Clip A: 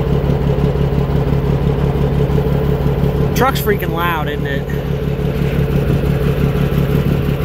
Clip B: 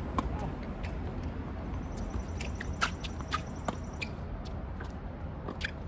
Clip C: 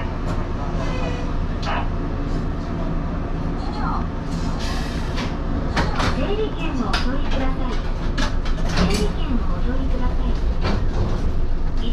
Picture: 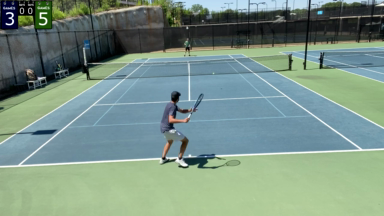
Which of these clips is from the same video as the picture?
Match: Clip B